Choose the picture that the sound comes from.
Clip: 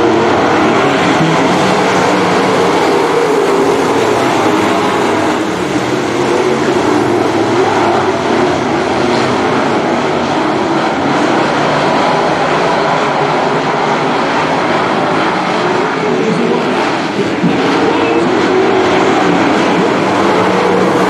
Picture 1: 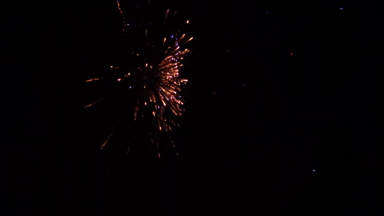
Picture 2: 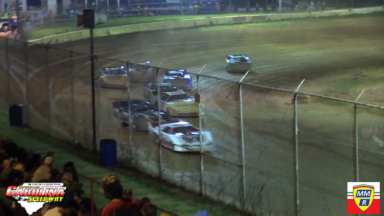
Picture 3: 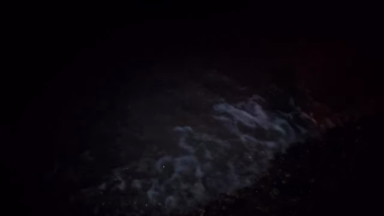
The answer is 2